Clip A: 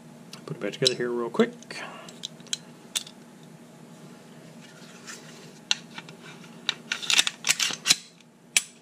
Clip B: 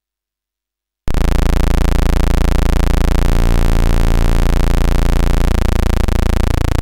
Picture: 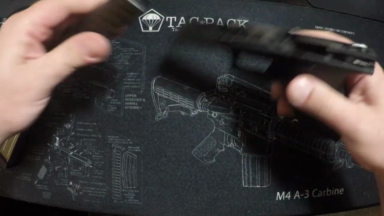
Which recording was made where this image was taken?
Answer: A